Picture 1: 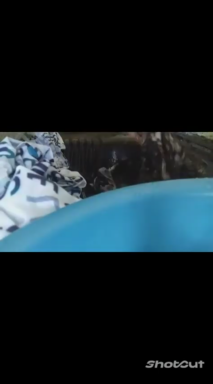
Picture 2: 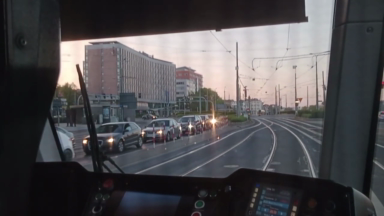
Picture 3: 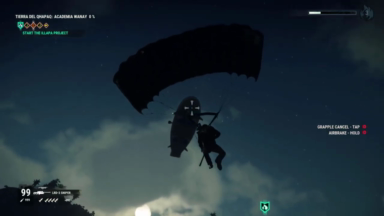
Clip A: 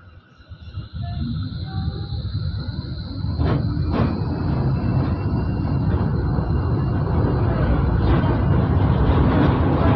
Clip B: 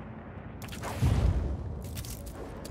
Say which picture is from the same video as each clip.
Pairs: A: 2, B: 3